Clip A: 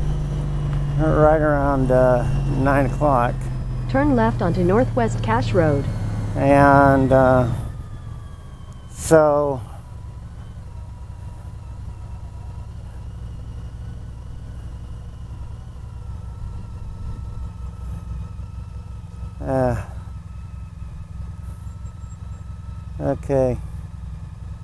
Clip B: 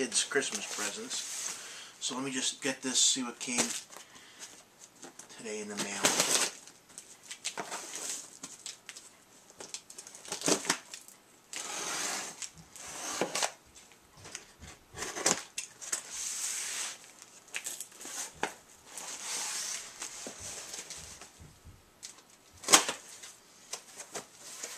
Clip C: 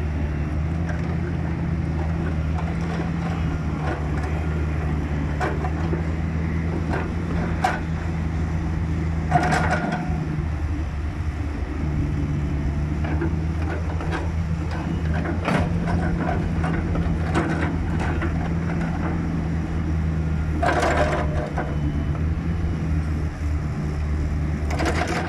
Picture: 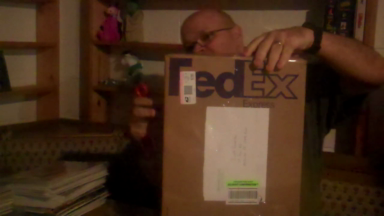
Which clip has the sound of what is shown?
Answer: B